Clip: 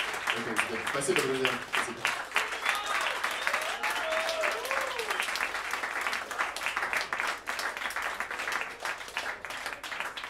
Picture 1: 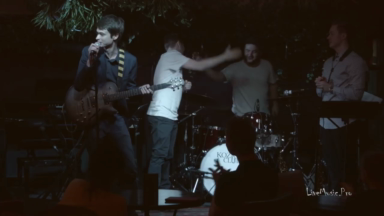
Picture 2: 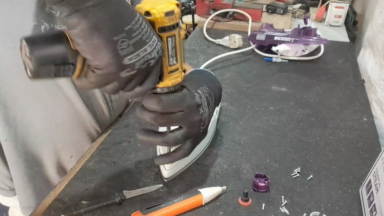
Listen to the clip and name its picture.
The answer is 1